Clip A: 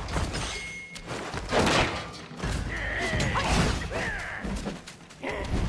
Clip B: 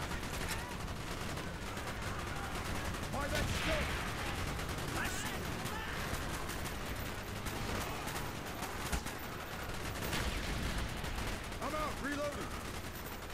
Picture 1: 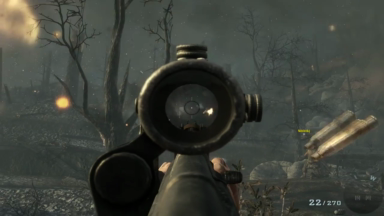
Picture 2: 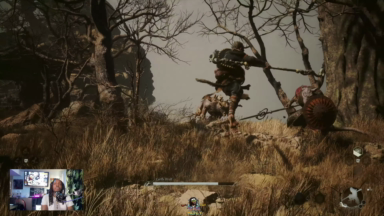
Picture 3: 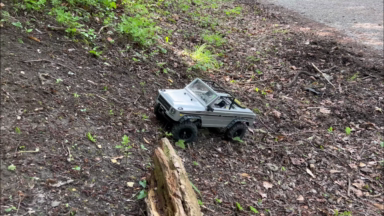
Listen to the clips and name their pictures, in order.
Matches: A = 2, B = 1